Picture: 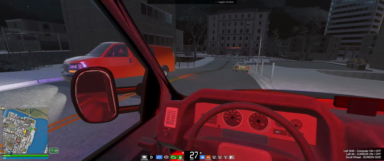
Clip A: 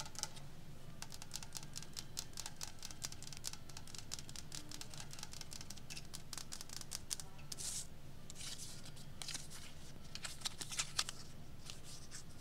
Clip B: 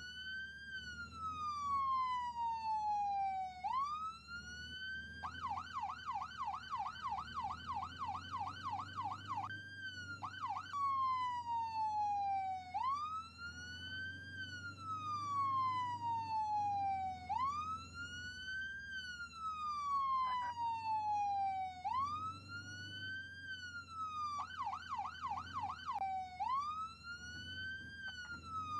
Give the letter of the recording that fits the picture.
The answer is B